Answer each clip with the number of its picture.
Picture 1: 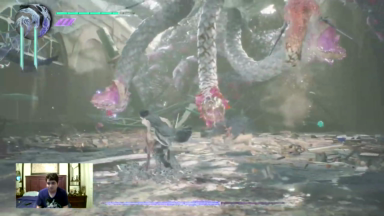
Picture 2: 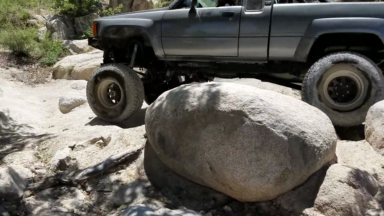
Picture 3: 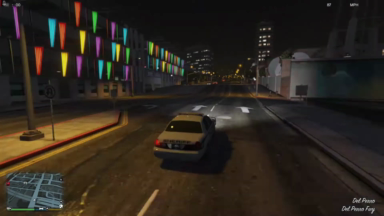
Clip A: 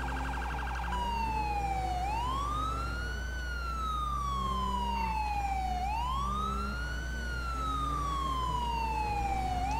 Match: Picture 3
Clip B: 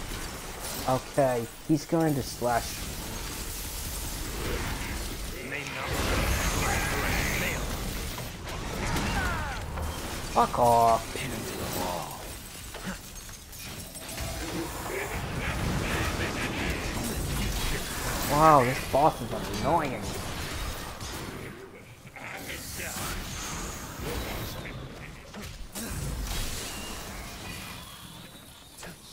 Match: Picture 1